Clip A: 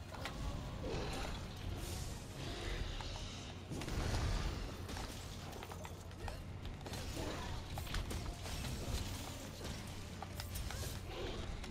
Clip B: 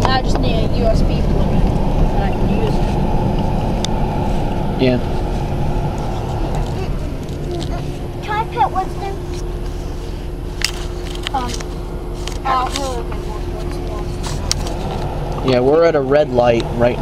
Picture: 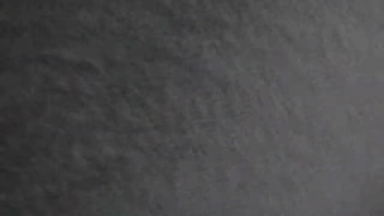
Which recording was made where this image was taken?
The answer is B